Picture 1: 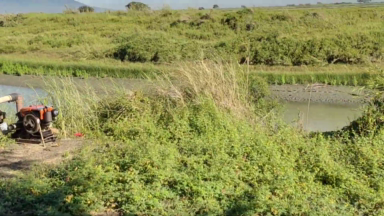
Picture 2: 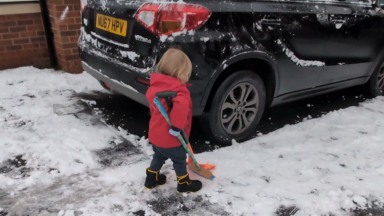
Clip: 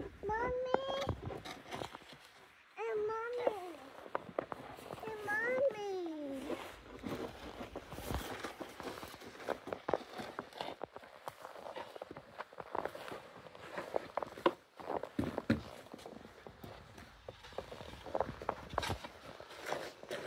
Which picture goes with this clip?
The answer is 2